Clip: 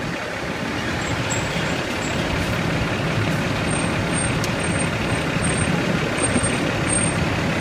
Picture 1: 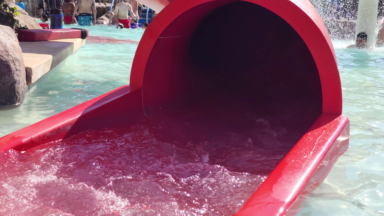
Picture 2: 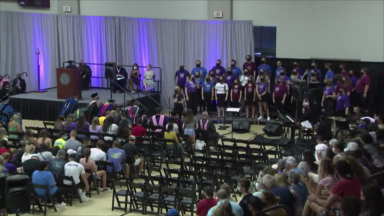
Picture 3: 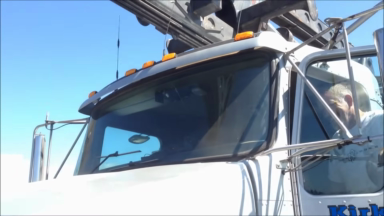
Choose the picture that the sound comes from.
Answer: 3